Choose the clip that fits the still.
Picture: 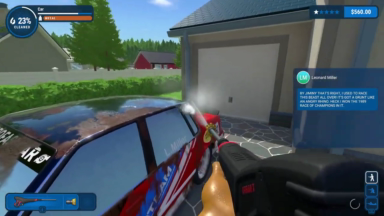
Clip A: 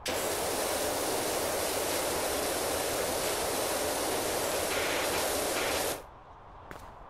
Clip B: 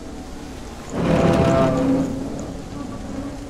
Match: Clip A